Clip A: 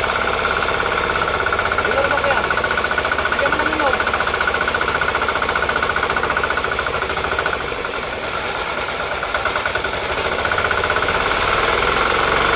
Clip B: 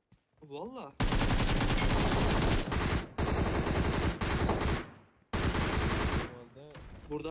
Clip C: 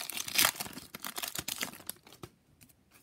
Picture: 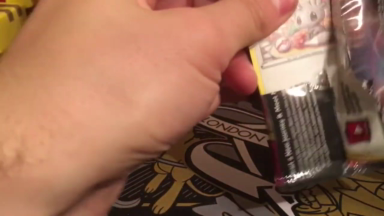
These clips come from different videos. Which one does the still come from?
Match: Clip C